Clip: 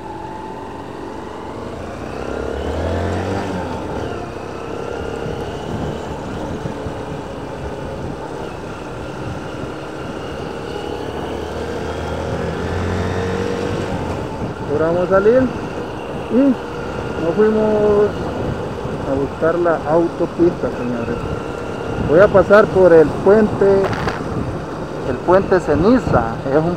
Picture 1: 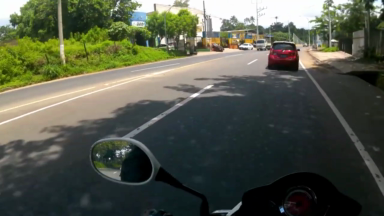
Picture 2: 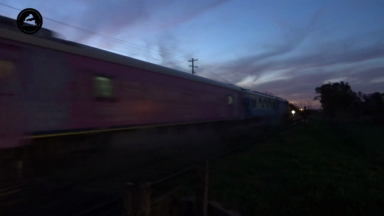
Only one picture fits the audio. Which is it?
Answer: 1